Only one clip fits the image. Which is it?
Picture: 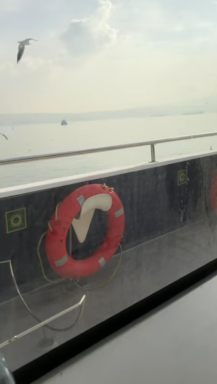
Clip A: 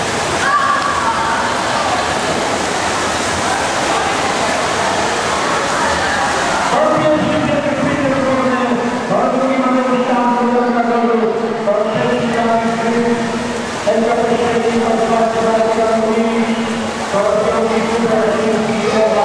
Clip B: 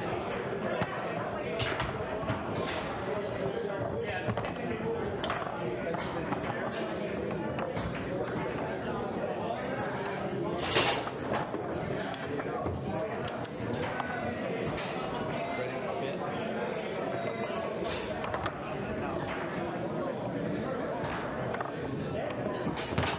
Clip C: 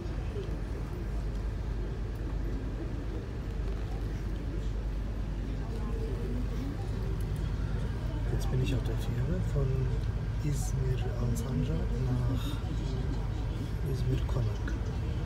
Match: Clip C